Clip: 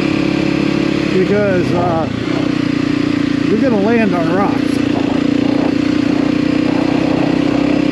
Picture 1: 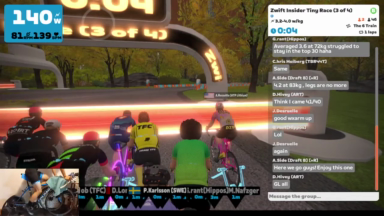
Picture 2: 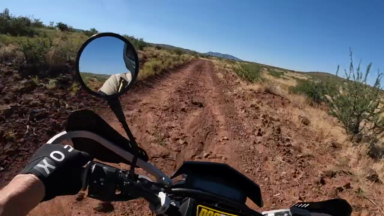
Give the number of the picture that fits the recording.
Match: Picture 2